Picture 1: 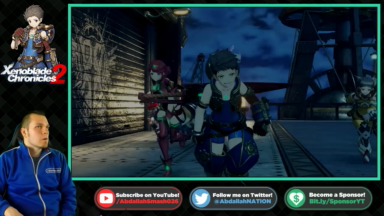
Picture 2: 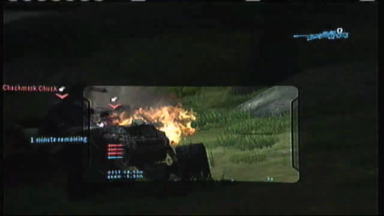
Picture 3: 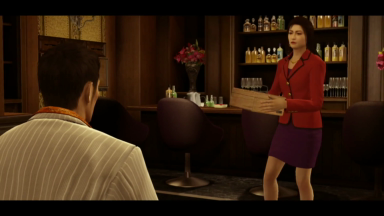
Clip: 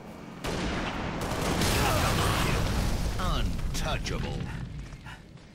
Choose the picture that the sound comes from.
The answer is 2